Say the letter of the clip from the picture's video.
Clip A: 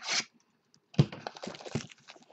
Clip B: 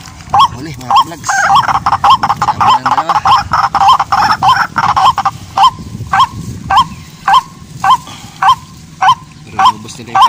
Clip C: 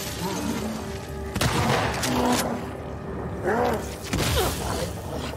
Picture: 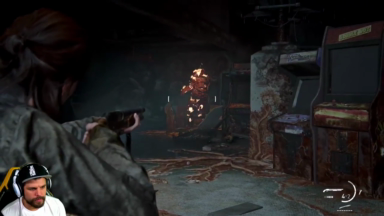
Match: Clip C